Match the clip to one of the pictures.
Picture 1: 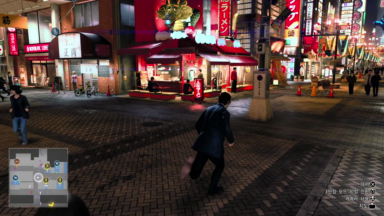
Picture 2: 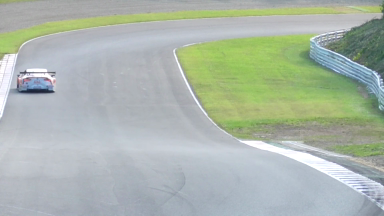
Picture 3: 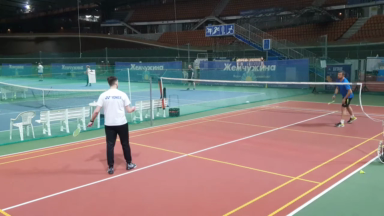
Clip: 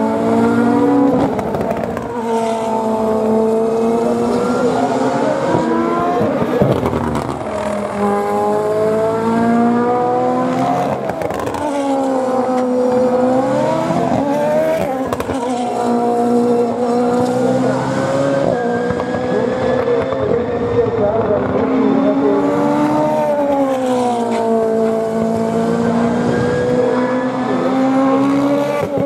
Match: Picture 2